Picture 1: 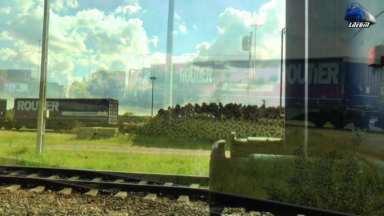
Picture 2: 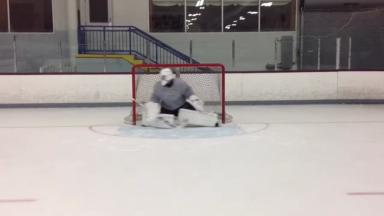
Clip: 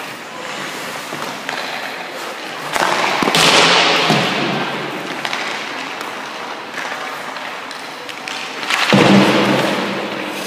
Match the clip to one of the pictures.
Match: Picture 2